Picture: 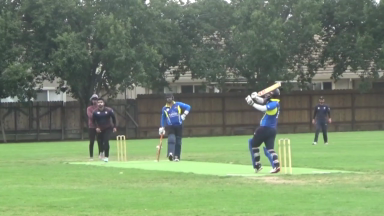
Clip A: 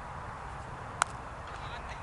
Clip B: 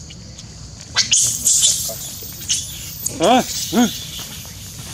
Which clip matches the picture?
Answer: A